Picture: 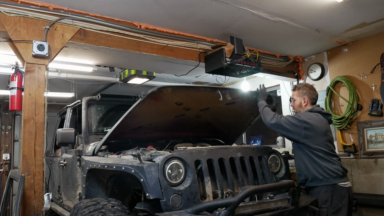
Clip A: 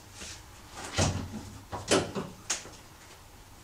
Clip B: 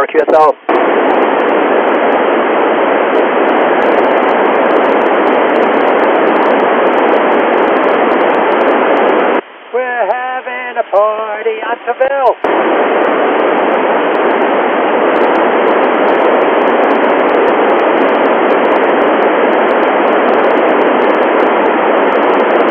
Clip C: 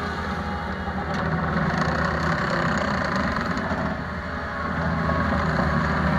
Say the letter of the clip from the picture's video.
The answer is A